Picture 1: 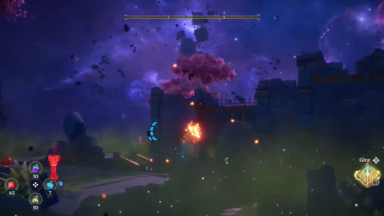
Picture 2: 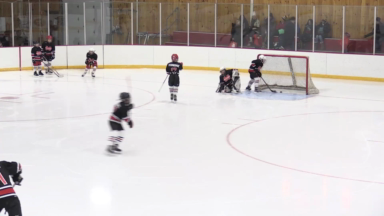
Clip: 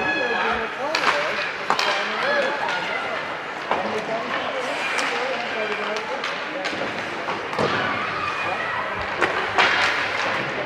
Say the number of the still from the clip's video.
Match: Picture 2